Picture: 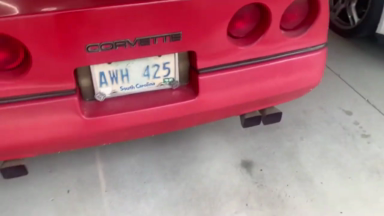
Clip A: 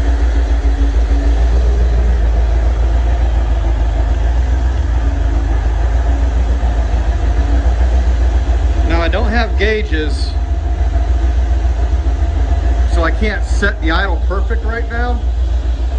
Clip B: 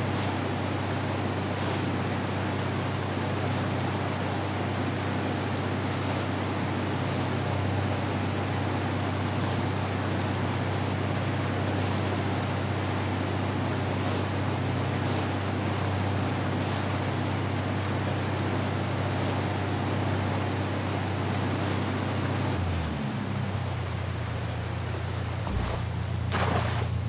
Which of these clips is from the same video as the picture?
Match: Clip A